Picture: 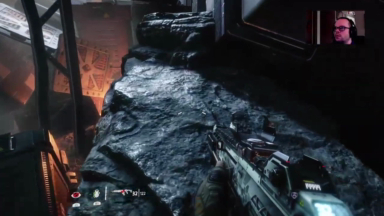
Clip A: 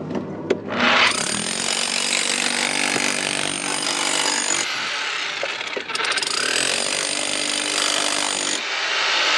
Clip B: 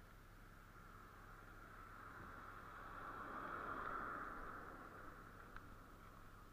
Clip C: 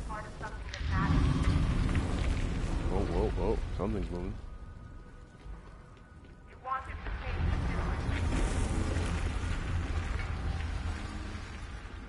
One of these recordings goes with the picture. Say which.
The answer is C